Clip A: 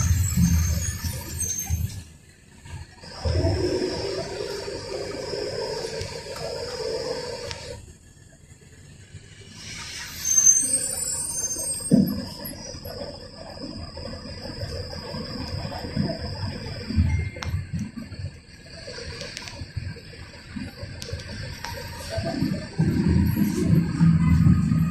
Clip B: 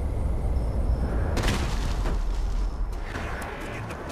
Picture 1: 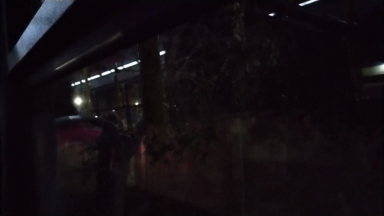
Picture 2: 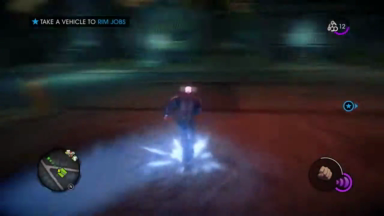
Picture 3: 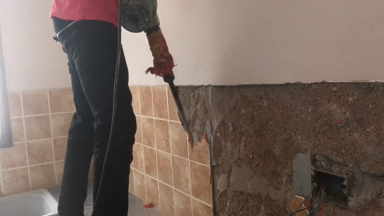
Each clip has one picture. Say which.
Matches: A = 1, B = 2